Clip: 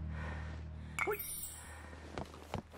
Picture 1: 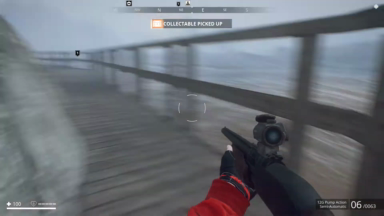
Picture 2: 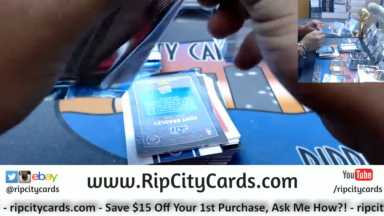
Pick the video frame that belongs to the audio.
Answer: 1